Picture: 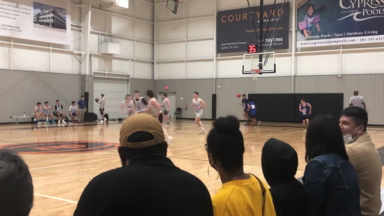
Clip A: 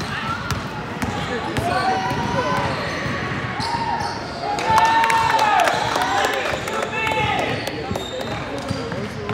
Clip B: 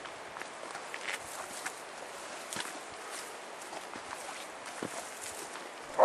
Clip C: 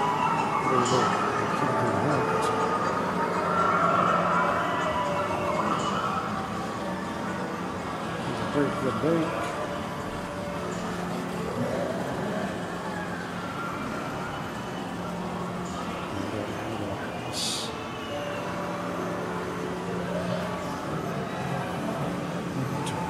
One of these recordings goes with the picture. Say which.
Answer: A